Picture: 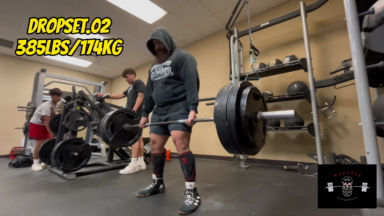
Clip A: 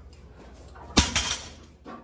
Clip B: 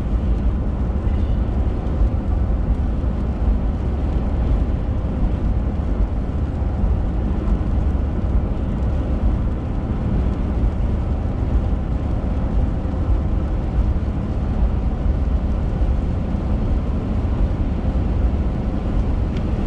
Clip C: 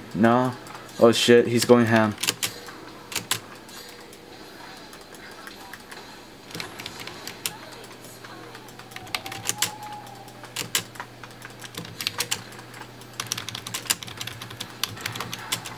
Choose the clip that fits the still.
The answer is A